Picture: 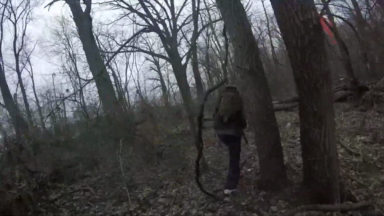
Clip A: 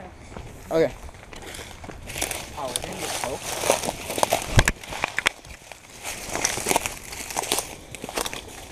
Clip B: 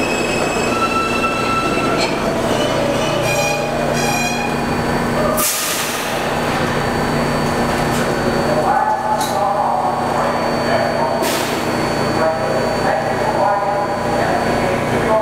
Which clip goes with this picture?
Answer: A